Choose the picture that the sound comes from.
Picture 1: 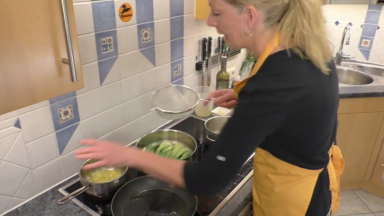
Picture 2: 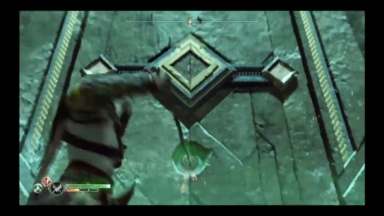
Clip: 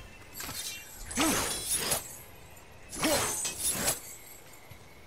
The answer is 2